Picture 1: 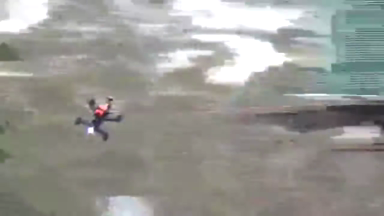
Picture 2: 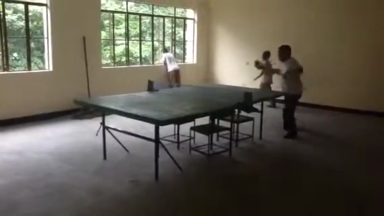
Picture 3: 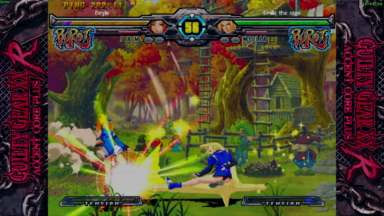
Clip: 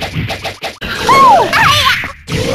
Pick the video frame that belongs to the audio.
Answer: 3